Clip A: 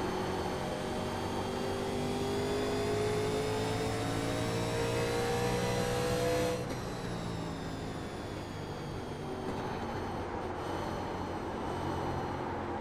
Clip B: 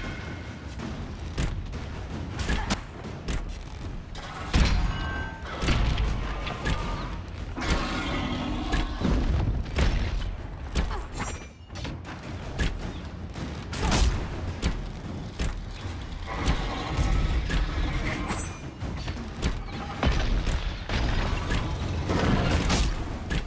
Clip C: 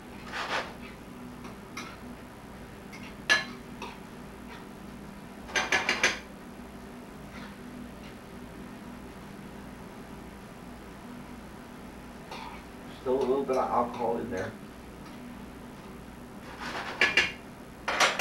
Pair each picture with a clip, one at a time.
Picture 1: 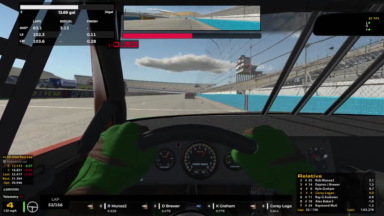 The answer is A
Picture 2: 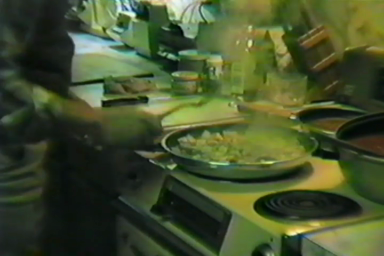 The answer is C